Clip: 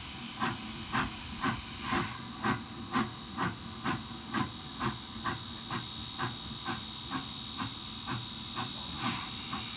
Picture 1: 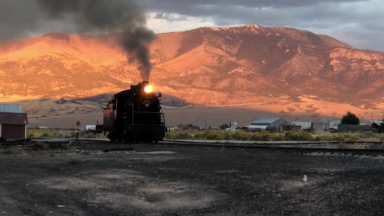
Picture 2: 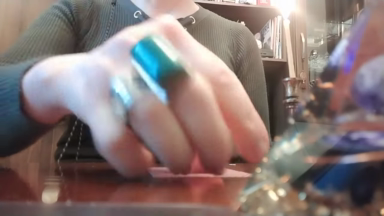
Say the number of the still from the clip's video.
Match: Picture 1